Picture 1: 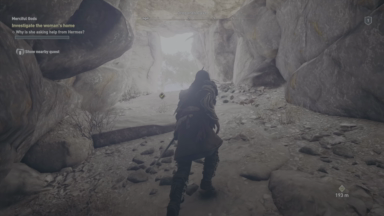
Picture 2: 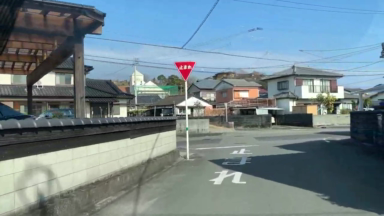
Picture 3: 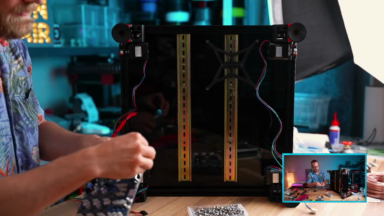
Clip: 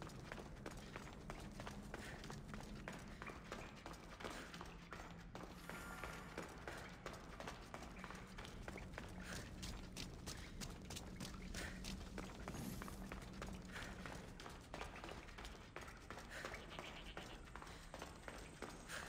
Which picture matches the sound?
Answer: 1